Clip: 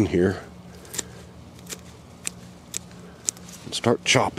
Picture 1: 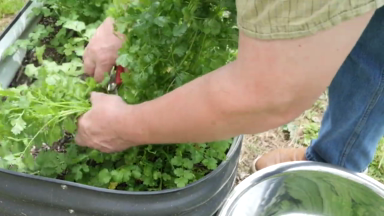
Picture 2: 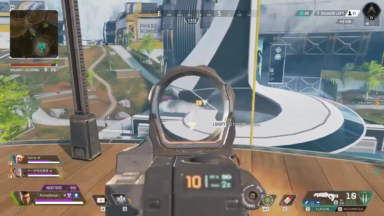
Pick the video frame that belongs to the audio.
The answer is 1